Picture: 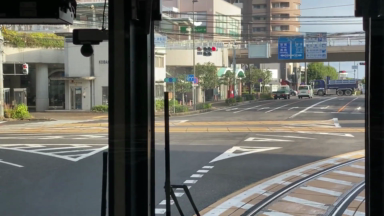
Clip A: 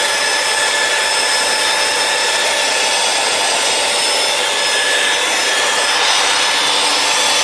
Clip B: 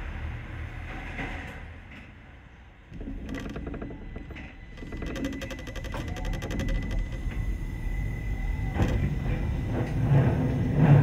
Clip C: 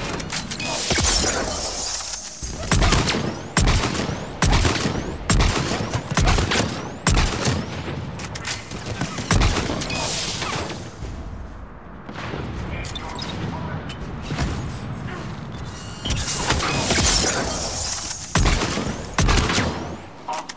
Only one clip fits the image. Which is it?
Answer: B